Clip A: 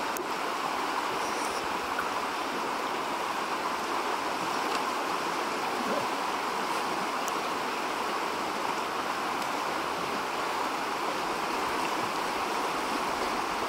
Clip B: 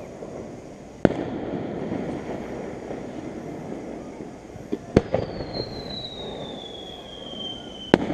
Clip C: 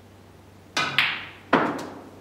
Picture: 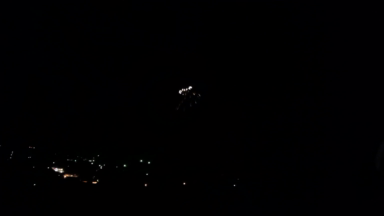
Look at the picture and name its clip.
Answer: B